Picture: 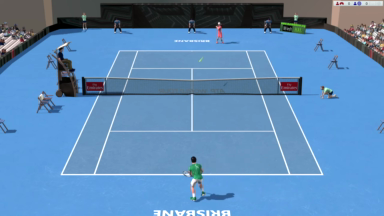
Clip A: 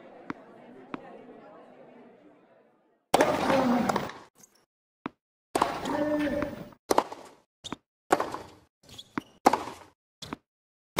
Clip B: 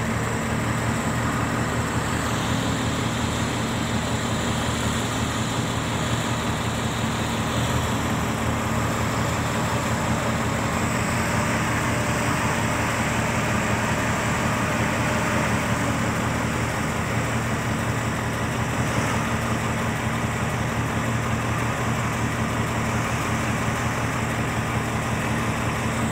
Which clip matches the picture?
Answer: A